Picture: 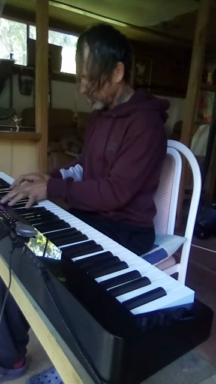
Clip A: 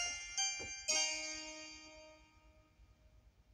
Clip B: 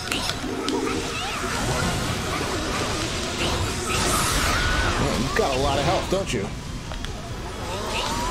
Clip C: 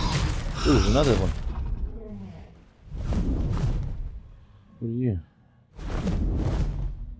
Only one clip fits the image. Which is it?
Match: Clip A